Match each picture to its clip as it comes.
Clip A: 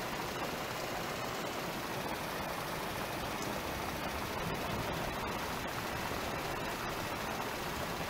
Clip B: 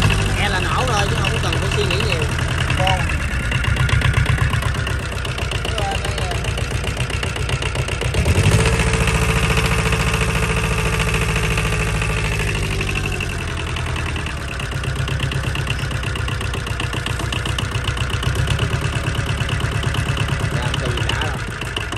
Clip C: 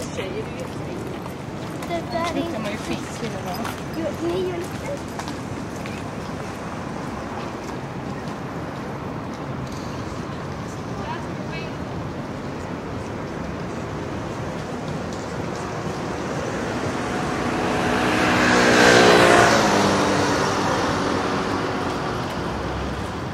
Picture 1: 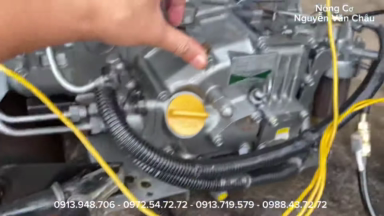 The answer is B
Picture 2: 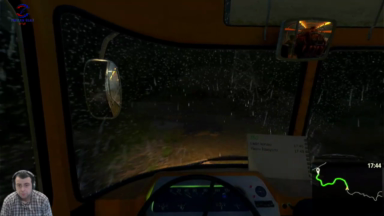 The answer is A